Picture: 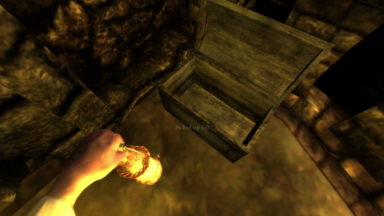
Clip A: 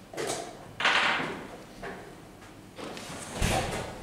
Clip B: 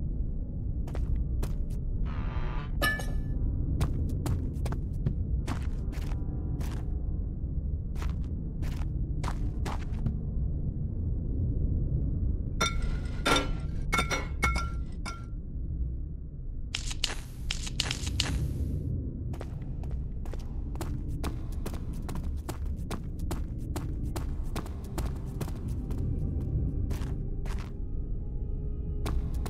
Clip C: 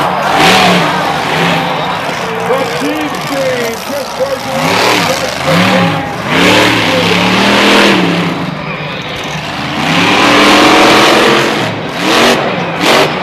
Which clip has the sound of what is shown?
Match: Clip B